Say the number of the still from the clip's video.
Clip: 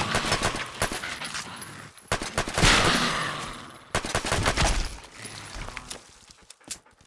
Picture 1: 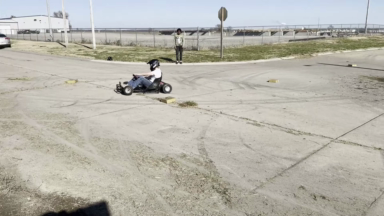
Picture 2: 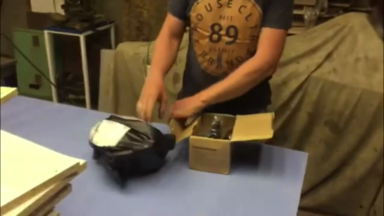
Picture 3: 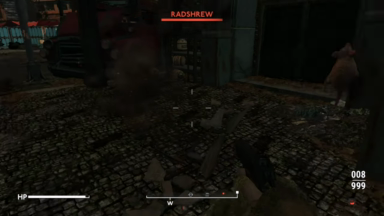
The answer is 3